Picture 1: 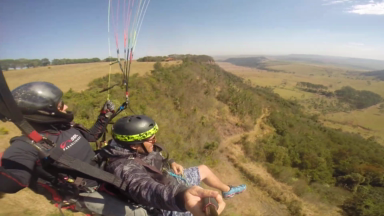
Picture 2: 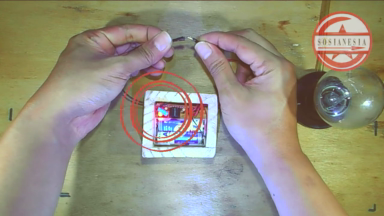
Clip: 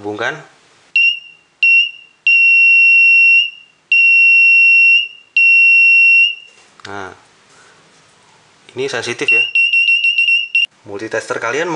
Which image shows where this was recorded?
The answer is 2